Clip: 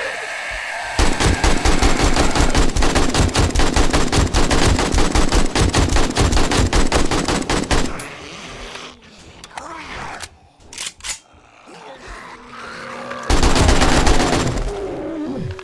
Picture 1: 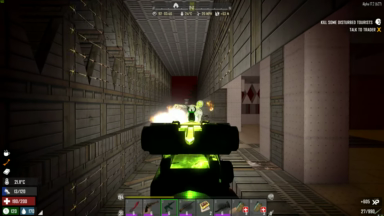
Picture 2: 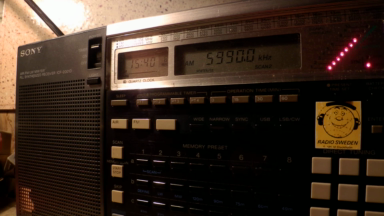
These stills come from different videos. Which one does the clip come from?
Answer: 1